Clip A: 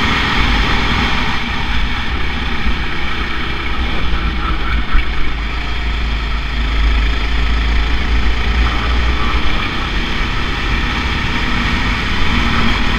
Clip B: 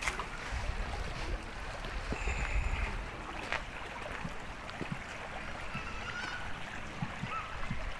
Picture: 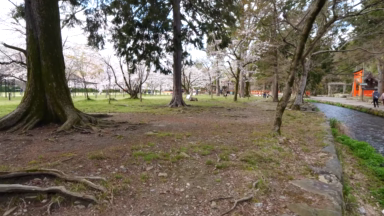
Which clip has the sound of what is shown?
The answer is B